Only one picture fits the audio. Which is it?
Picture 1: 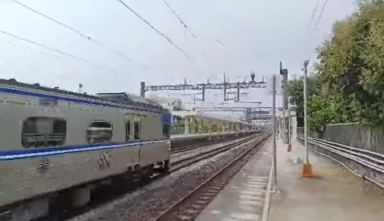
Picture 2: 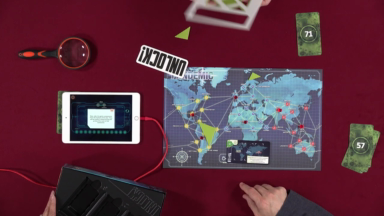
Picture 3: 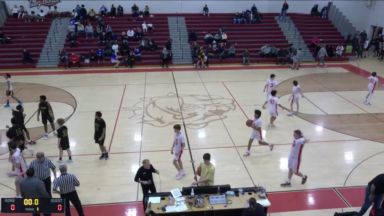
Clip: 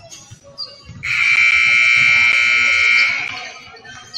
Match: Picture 3